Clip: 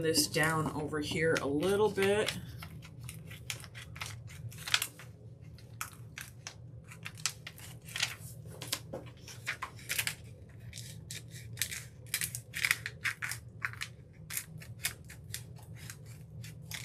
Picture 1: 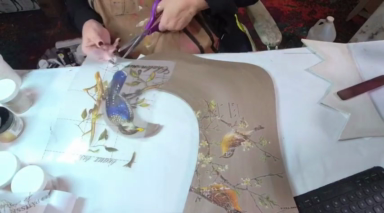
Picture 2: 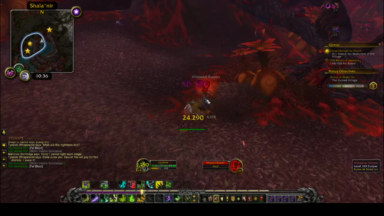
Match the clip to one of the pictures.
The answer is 1